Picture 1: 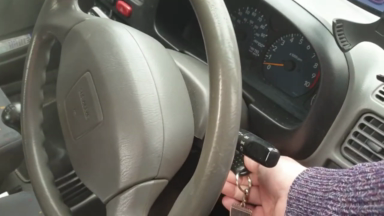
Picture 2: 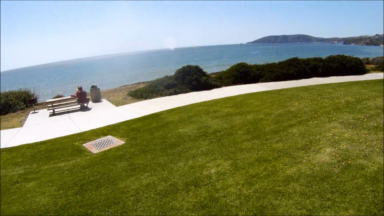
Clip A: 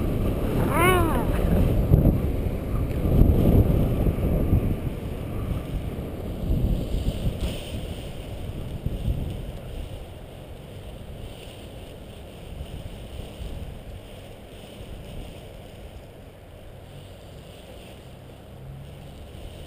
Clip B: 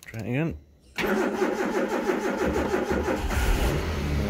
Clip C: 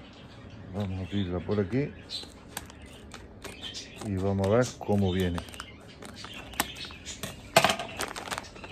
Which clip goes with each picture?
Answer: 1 B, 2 A